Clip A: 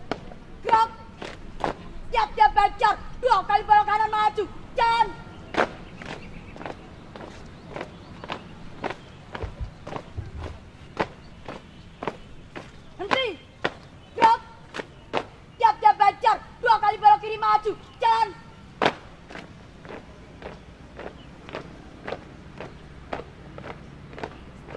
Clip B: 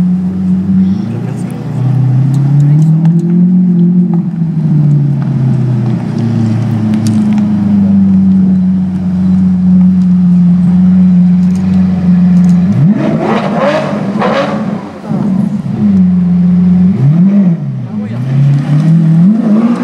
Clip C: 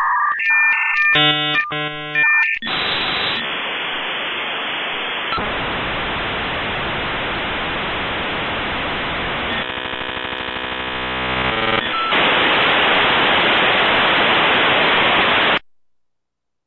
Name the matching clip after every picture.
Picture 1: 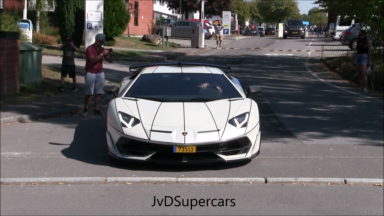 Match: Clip B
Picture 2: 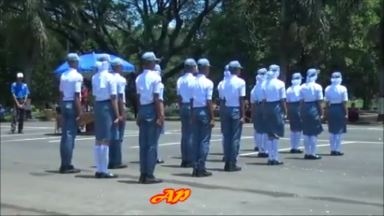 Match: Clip A